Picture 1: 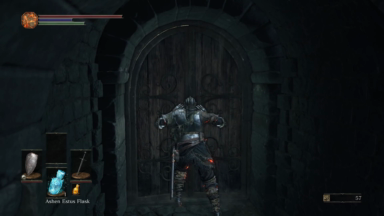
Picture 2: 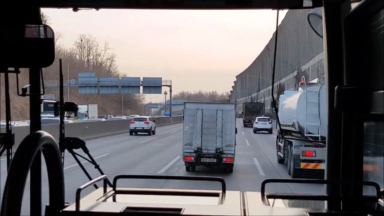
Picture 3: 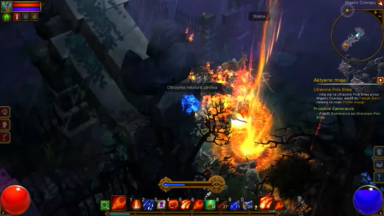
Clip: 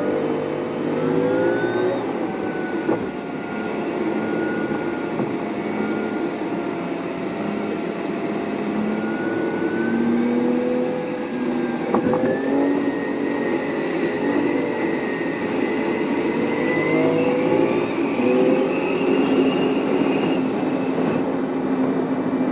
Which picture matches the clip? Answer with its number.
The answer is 2